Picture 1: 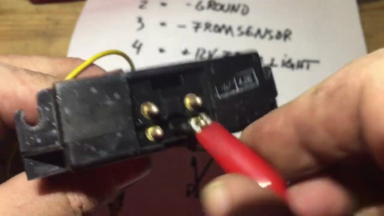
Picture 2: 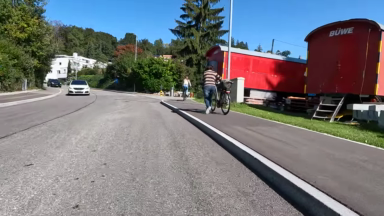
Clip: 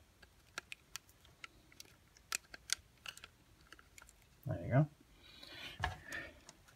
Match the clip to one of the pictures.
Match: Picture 1